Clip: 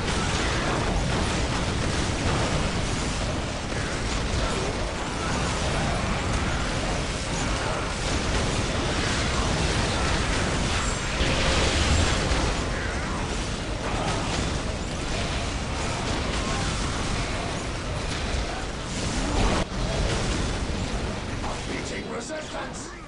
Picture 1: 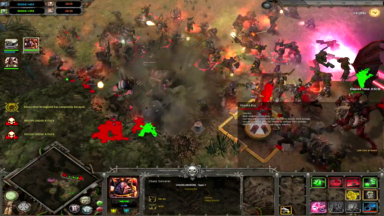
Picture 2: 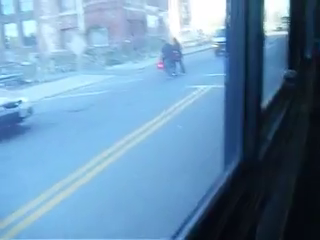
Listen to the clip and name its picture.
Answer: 1